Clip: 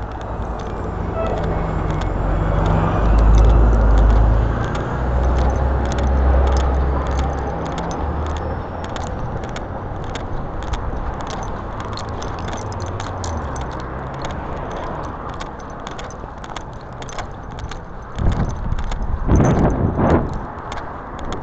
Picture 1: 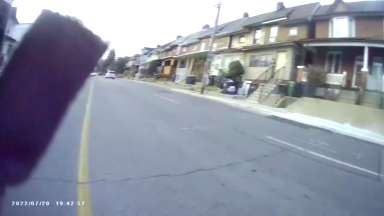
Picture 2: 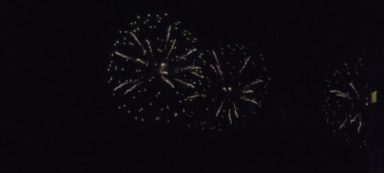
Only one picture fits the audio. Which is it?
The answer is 1